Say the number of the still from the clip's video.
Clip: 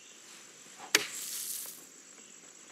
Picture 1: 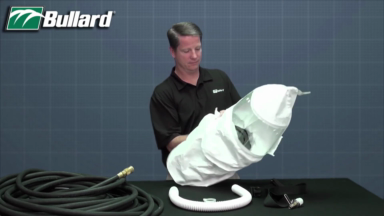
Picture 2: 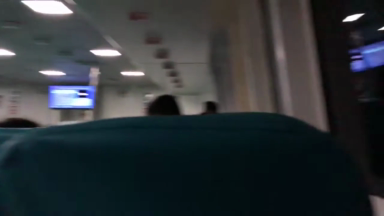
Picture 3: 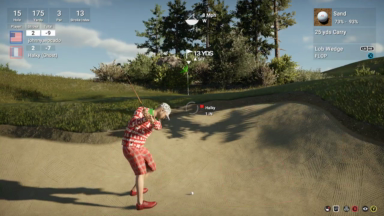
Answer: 3